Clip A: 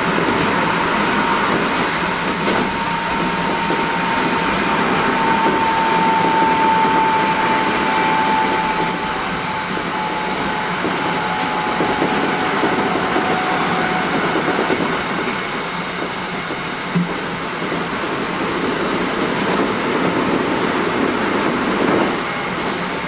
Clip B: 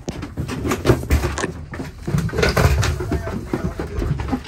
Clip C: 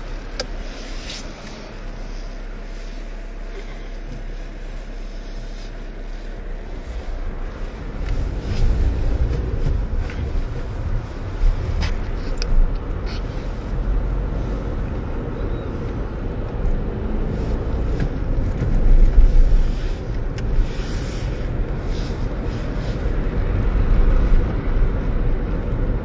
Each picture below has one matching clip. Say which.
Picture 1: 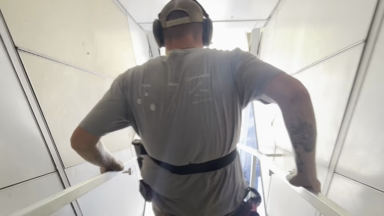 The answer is B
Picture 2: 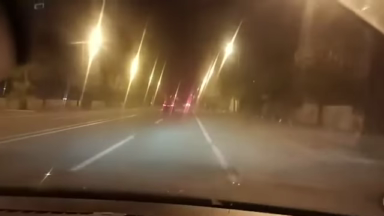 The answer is C